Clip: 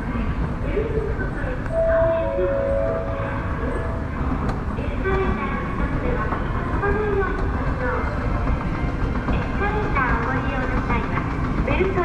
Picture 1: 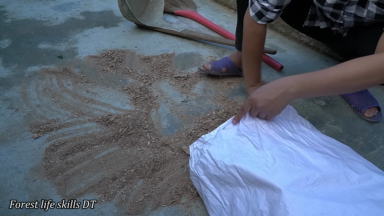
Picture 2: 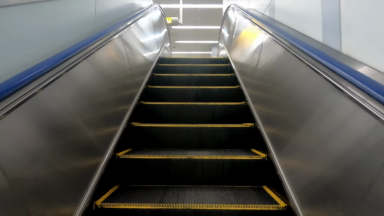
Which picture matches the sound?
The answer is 2